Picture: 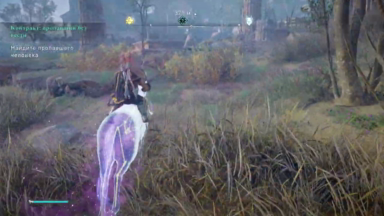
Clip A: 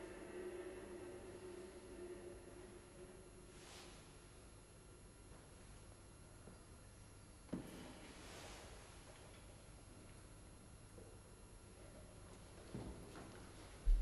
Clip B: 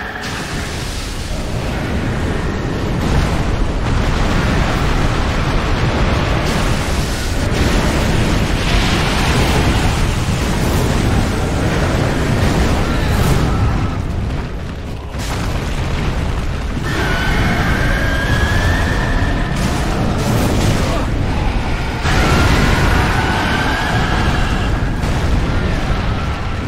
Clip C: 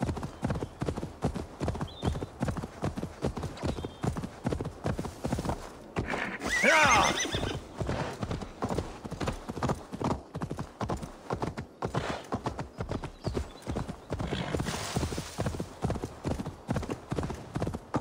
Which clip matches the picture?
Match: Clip C